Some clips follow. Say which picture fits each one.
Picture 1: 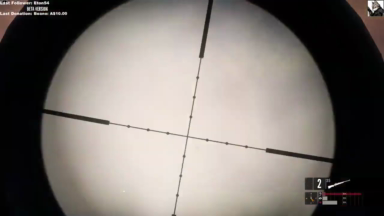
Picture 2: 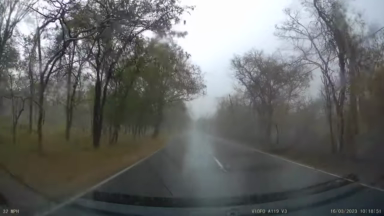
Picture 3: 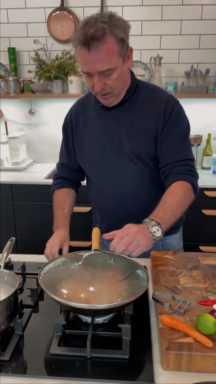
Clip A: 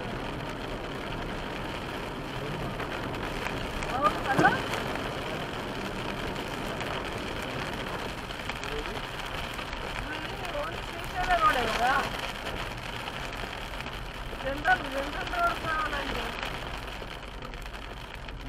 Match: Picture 2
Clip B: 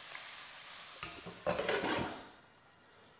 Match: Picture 3